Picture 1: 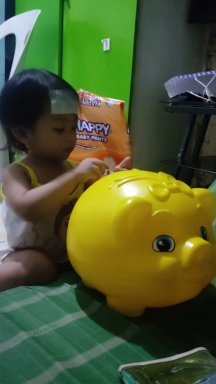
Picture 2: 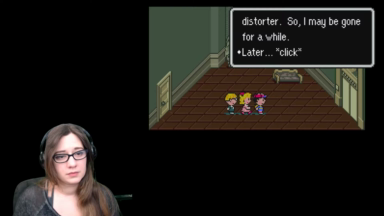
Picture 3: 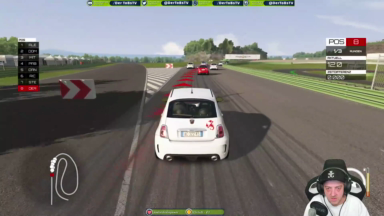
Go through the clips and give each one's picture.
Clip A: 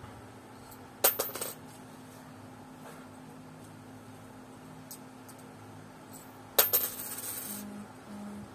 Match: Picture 1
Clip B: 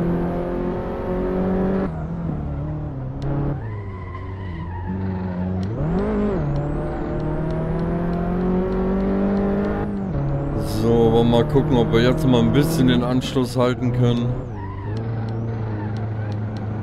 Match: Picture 3